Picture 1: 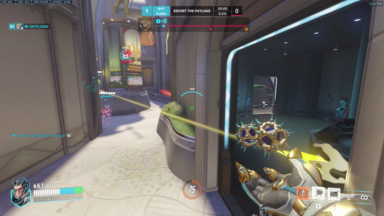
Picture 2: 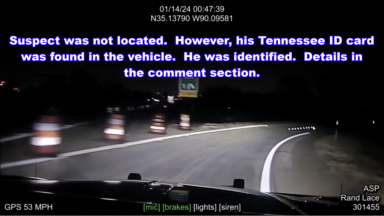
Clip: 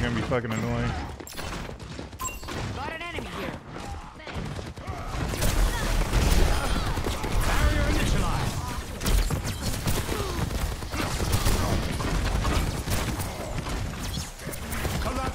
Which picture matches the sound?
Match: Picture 1